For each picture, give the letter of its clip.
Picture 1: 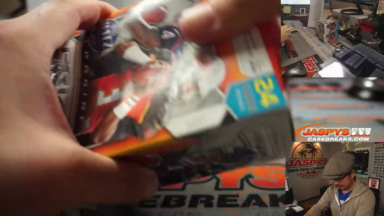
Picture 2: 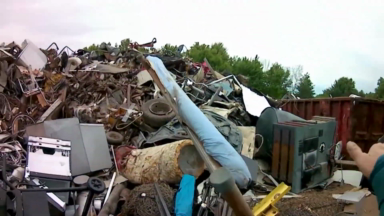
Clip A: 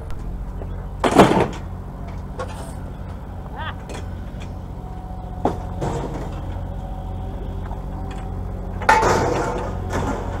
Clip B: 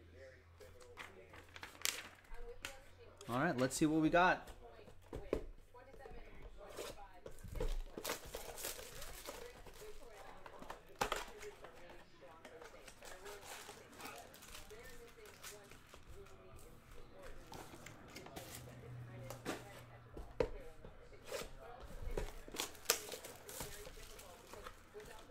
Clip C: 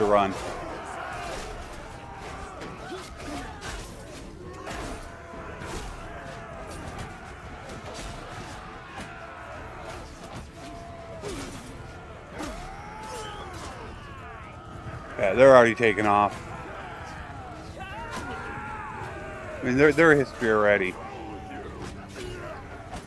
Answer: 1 B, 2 A